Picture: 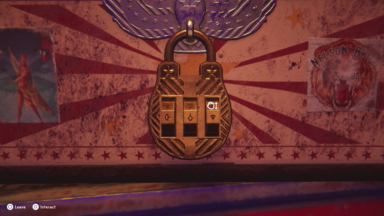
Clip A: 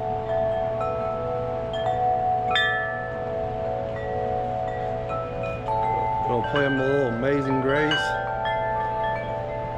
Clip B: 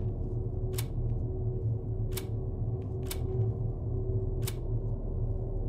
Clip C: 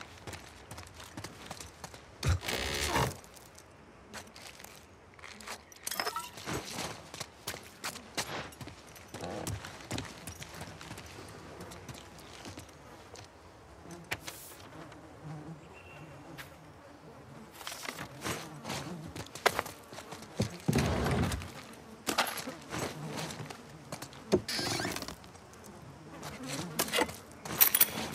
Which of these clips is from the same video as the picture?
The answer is B